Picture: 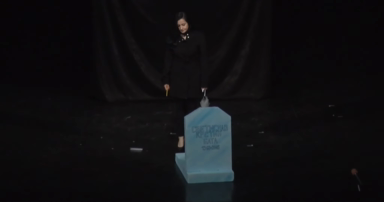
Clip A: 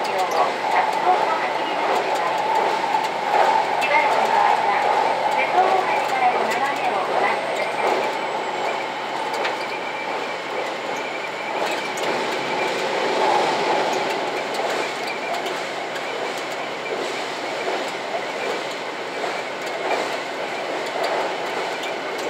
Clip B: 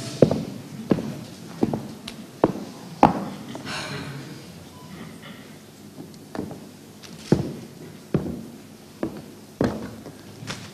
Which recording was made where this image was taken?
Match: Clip B